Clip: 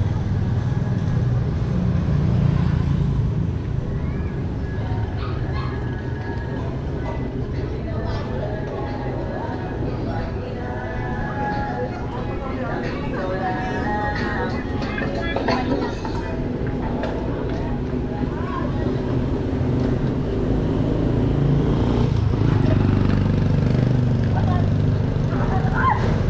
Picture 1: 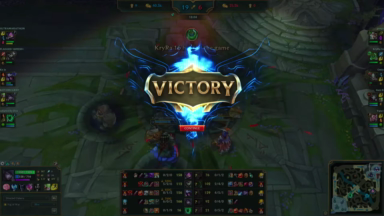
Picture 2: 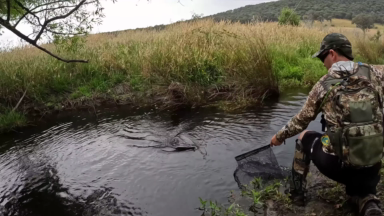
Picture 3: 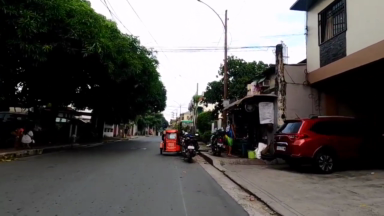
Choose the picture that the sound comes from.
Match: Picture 3